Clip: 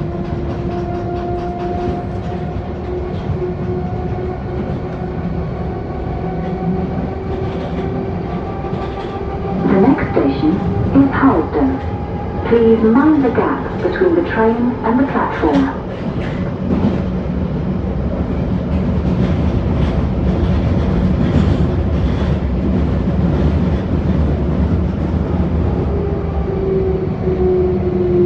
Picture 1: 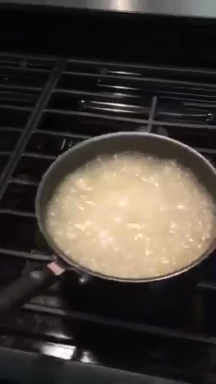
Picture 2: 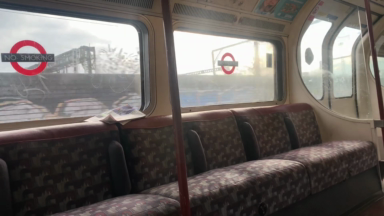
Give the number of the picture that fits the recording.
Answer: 2